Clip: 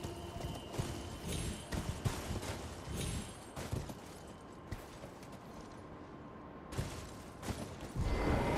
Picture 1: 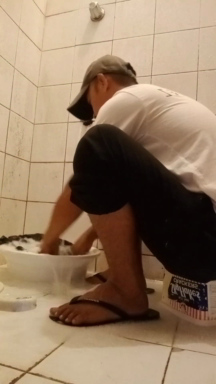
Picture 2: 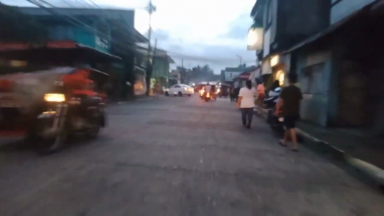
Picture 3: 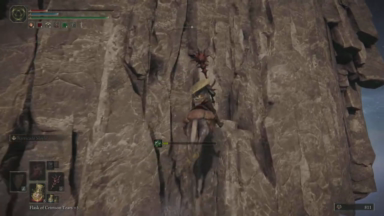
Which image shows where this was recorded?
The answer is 3